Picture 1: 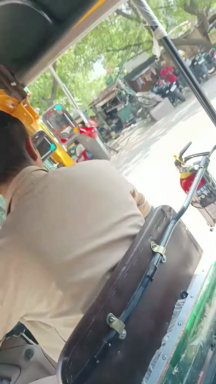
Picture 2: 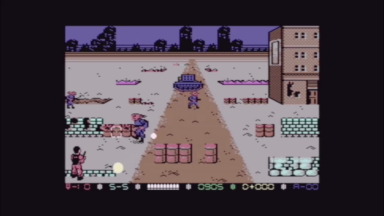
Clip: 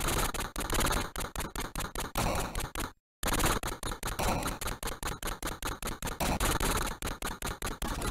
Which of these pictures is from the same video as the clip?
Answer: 2